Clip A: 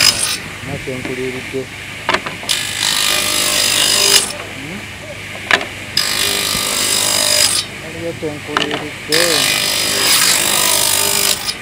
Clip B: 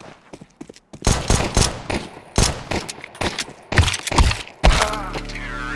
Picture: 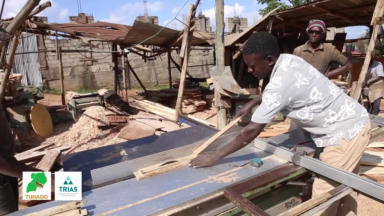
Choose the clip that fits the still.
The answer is A